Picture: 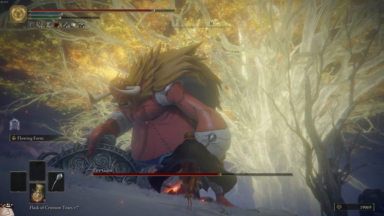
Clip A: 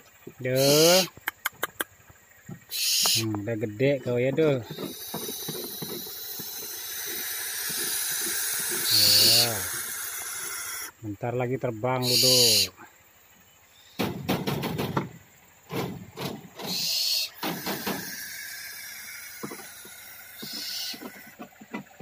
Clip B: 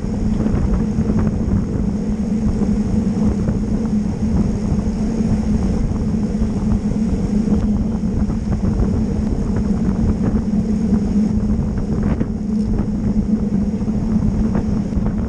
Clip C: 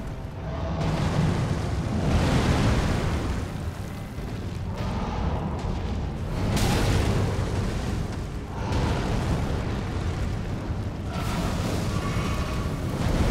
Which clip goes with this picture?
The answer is C